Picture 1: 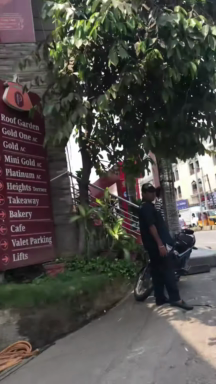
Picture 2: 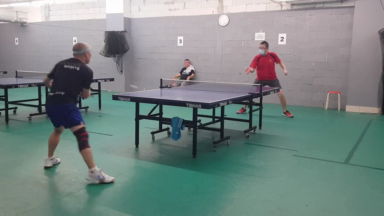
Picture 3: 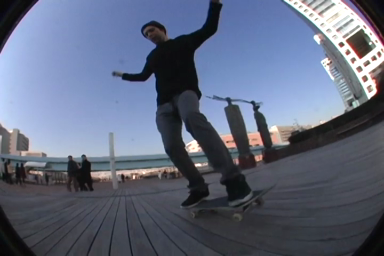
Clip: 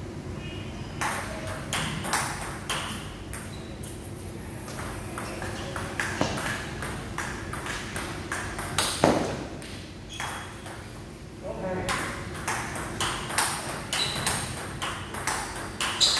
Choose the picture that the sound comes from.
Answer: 2